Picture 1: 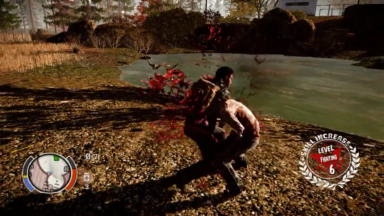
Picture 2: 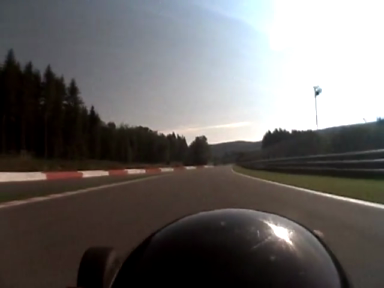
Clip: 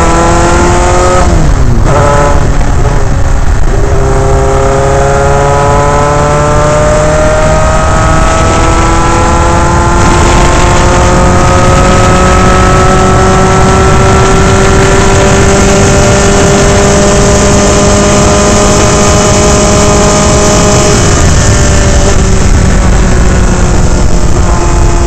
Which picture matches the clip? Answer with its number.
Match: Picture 2